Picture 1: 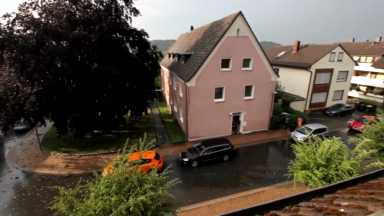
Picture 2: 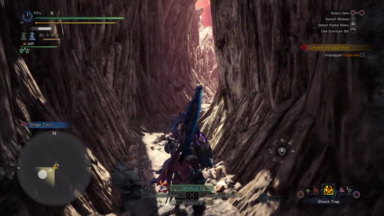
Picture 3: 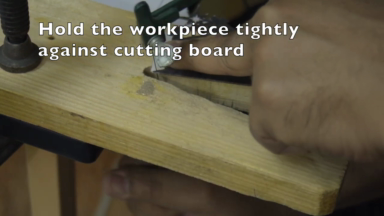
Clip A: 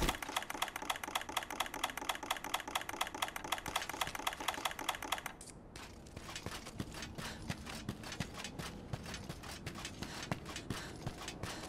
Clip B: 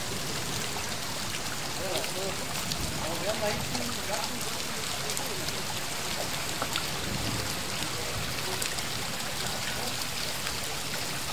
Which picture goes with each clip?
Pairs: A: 2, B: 1